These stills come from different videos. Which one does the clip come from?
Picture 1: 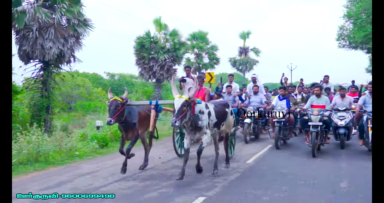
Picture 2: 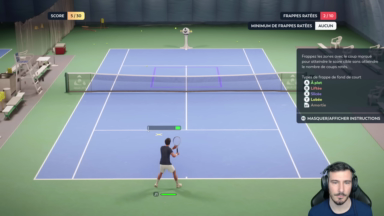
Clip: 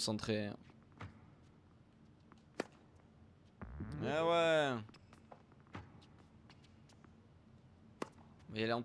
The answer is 2